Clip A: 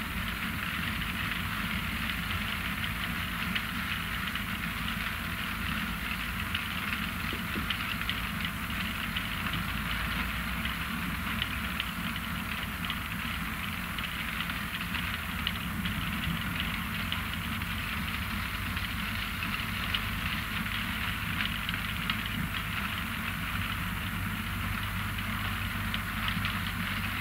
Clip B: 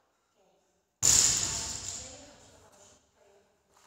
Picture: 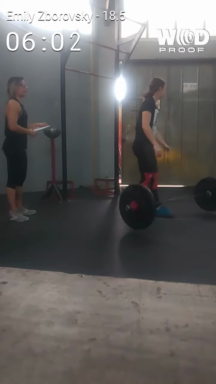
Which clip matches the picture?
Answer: B